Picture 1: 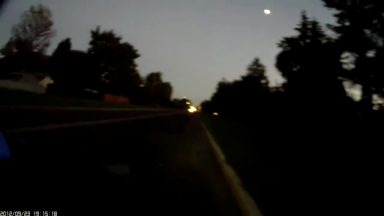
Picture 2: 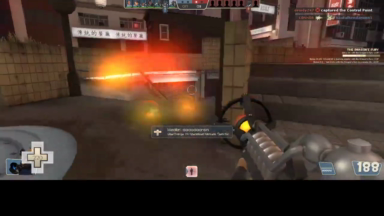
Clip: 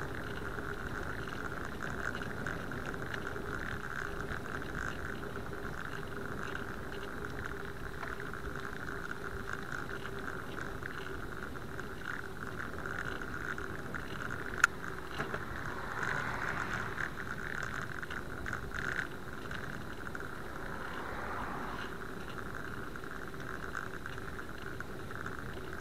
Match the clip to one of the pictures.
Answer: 1